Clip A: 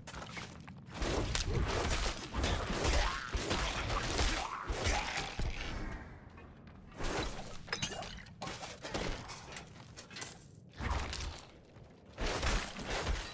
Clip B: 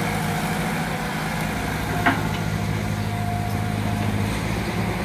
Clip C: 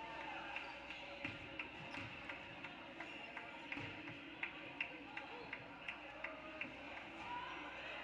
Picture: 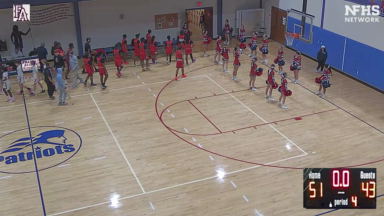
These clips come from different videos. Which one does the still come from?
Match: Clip C